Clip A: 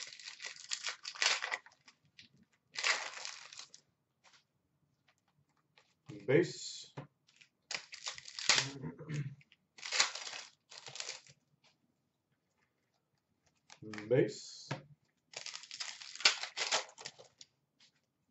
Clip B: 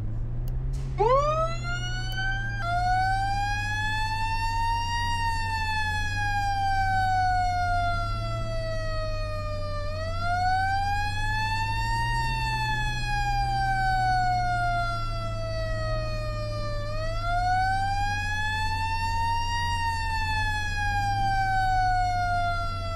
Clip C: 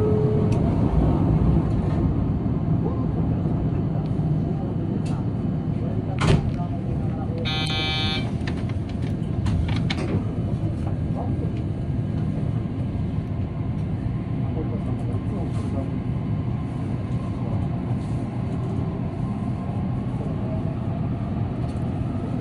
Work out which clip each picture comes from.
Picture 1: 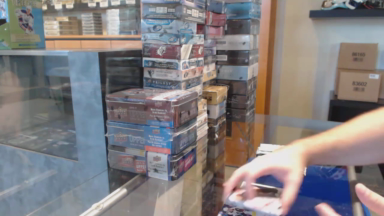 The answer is A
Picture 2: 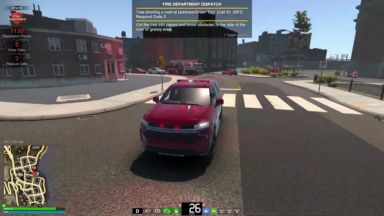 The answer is B